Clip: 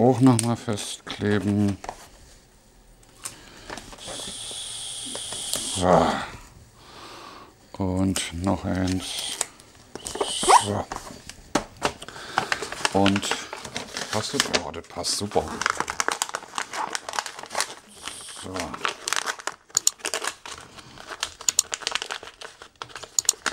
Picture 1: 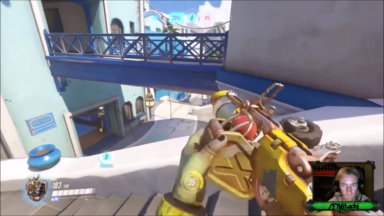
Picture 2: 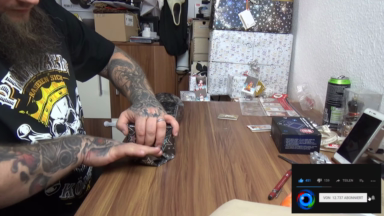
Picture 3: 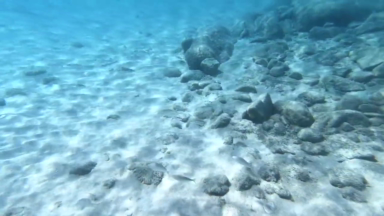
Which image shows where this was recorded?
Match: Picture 2